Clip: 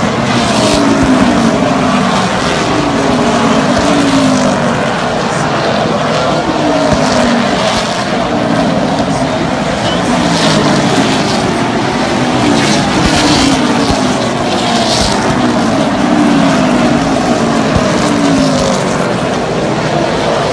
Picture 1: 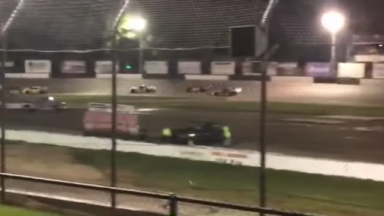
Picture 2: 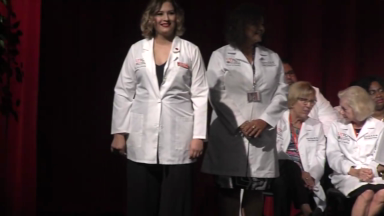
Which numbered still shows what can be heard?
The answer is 1